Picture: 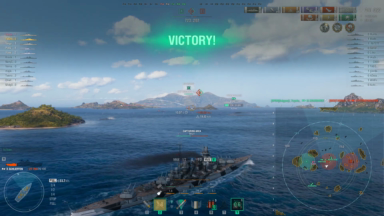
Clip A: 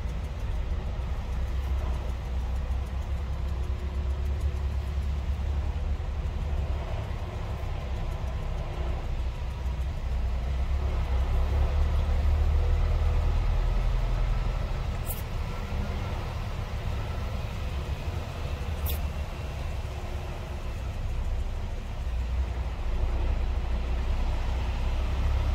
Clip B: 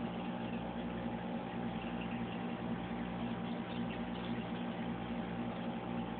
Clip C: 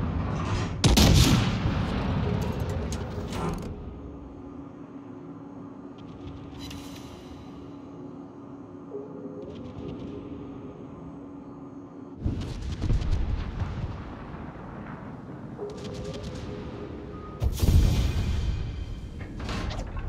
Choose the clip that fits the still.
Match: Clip C